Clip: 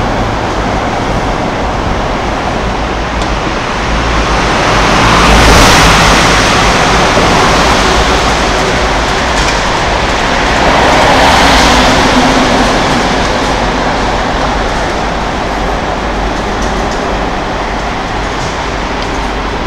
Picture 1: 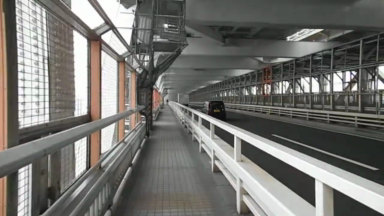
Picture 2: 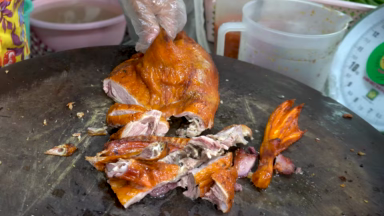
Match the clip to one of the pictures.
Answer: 1